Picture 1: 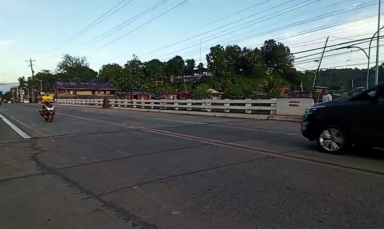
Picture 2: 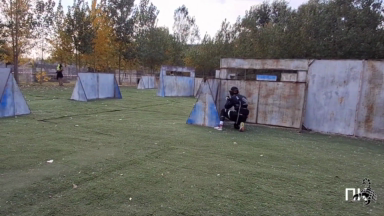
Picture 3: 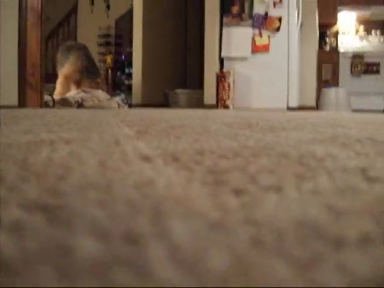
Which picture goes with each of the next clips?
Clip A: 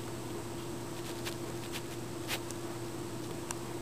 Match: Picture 3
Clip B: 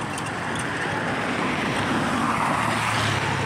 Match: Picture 1